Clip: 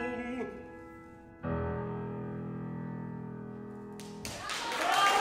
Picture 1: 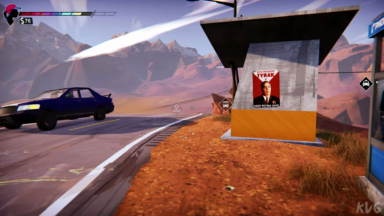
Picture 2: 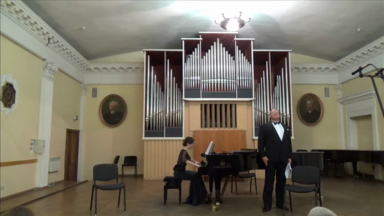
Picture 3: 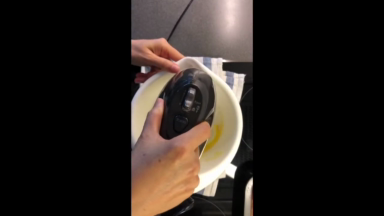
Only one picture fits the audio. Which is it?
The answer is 2